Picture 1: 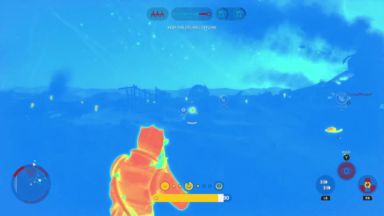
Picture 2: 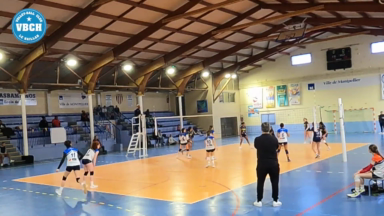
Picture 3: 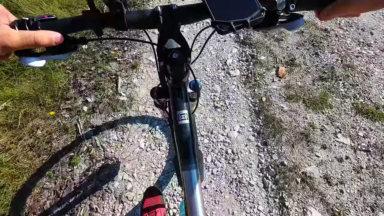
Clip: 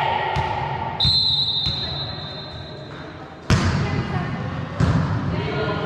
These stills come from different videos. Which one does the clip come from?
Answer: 2